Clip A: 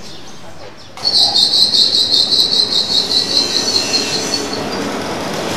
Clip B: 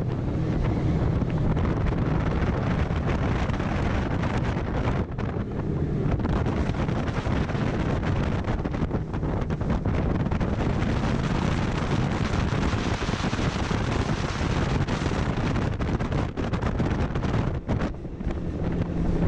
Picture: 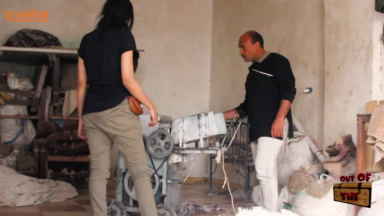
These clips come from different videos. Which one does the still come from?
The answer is A